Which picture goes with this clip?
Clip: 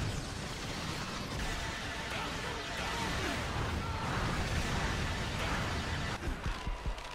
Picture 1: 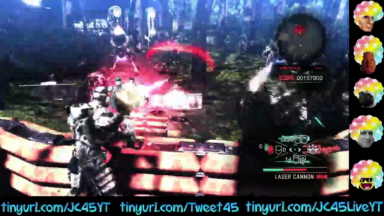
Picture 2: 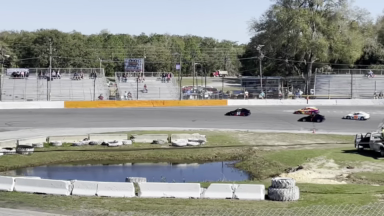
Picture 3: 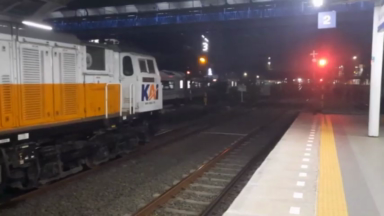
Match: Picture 1